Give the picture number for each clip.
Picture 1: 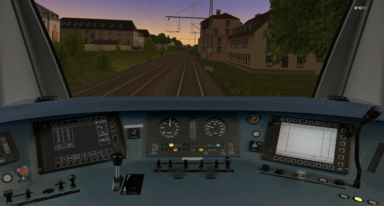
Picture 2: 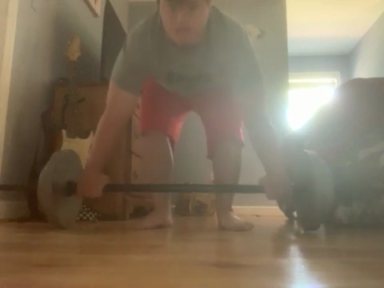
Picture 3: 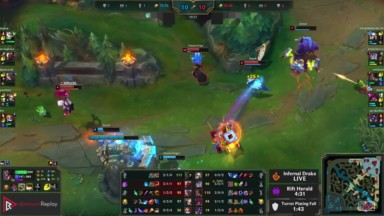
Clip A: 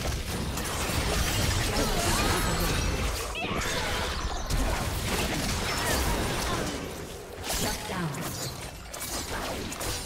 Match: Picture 3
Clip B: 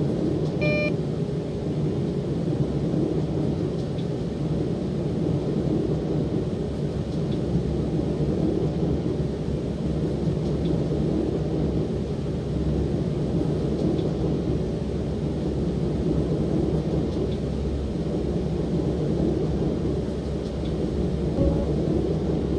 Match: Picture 1